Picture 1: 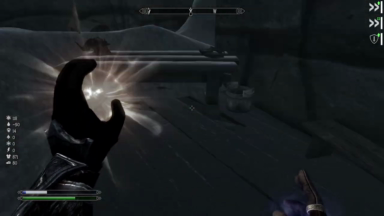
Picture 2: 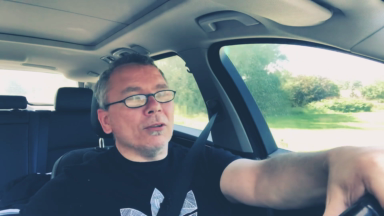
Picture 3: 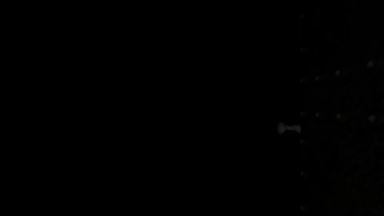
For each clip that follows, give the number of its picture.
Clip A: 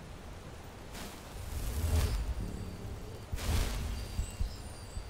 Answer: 1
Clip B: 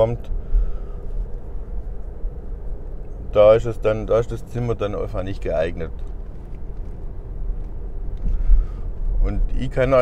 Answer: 2